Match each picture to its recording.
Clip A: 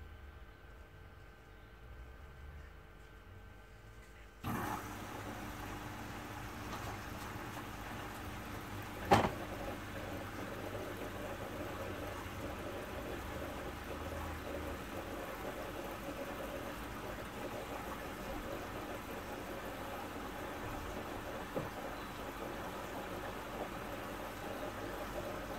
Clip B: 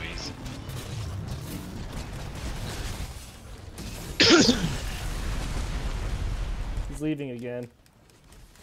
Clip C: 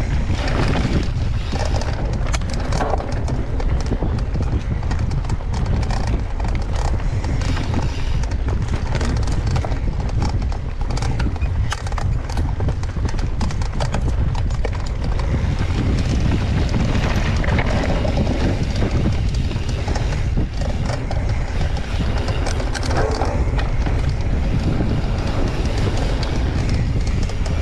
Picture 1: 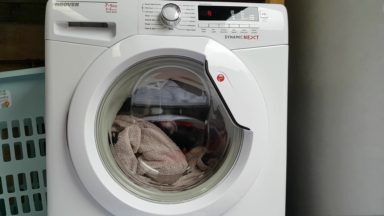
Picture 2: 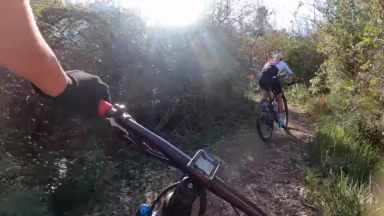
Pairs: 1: A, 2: C